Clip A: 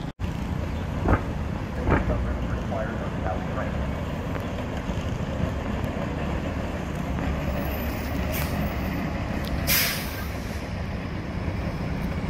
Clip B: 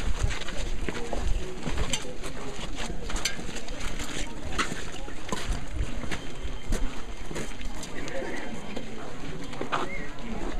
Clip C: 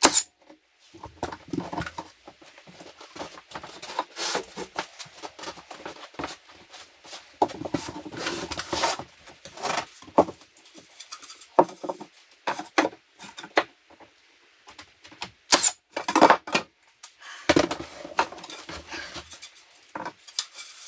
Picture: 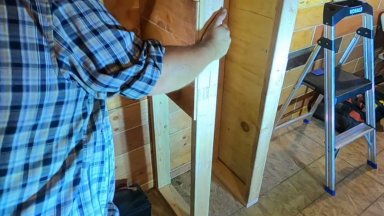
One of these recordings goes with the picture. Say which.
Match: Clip C